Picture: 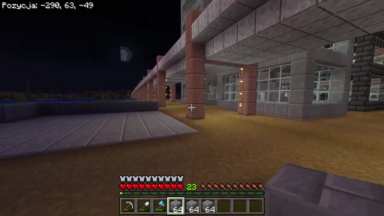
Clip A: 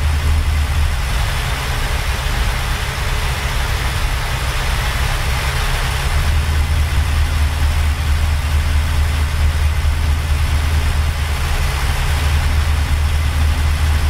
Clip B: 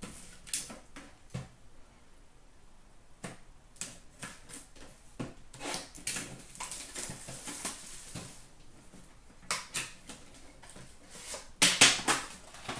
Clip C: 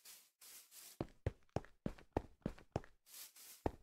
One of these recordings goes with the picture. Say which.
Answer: C